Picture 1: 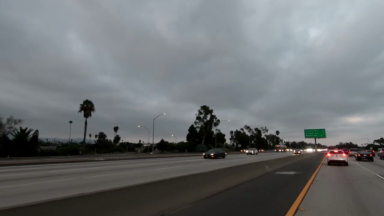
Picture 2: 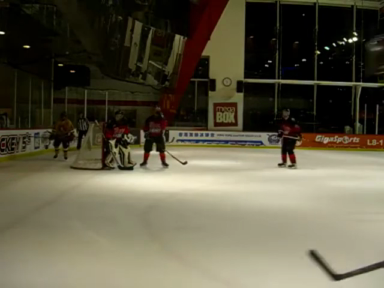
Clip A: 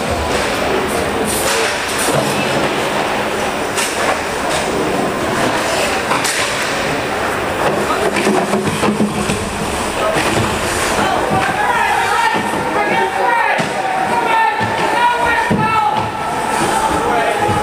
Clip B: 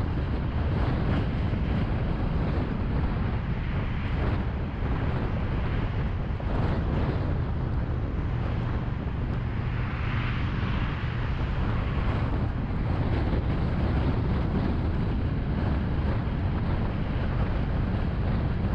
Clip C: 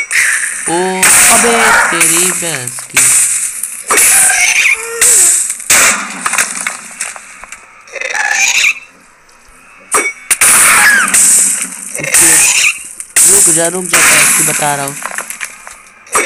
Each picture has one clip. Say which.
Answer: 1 B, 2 A